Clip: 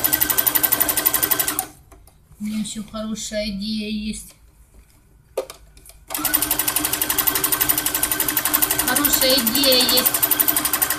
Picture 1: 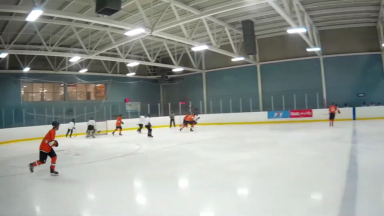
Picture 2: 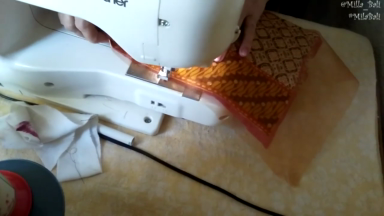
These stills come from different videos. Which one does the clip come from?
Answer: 2